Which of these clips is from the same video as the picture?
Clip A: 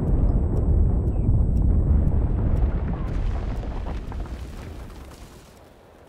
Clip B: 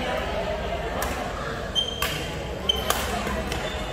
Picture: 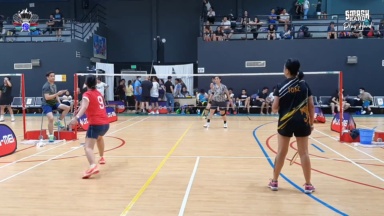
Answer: B